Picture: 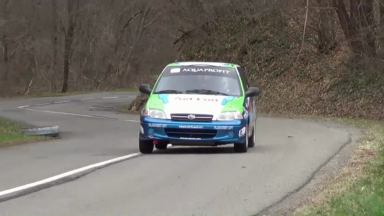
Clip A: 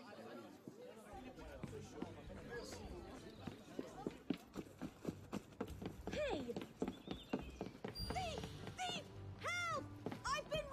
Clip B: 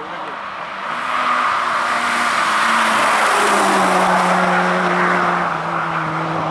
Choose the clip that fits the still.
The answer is B